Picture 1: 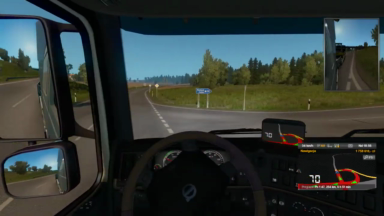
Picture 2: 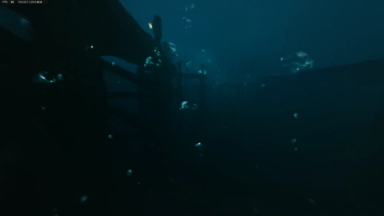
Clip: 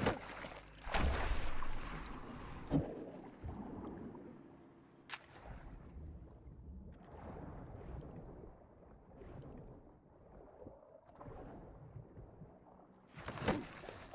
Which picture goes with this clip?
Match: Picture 2